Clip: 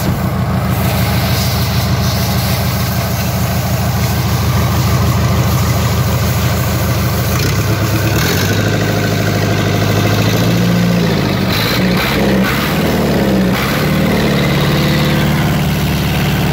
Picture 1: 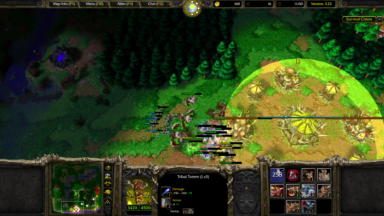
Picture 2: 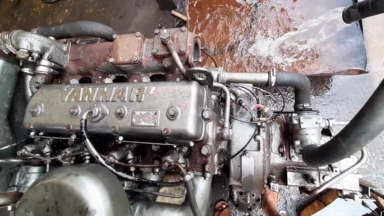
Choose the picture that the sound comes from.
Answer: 2